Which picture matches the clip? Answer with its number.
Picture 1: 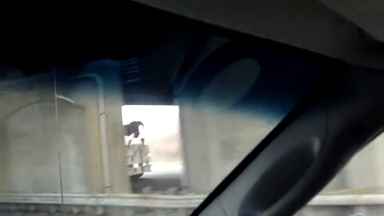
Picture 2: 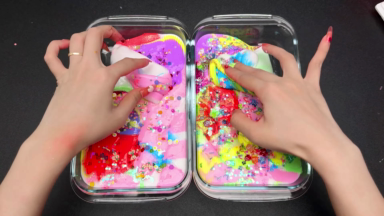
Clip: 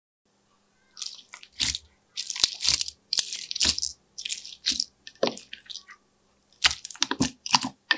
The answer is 2